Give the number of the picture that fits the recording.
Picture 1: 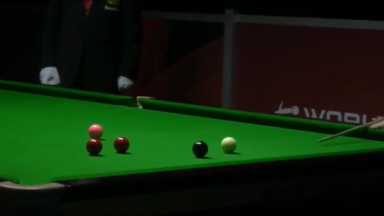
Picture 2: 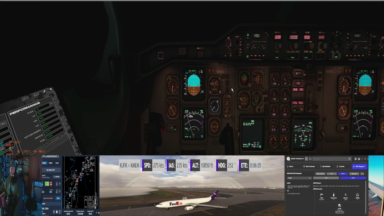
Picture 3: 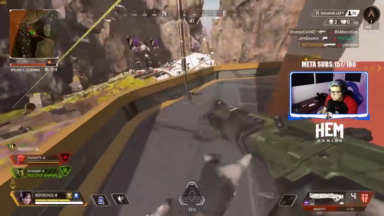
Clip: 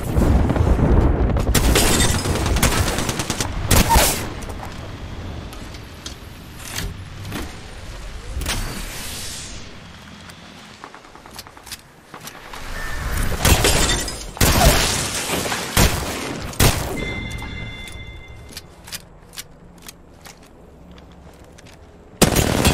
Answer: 3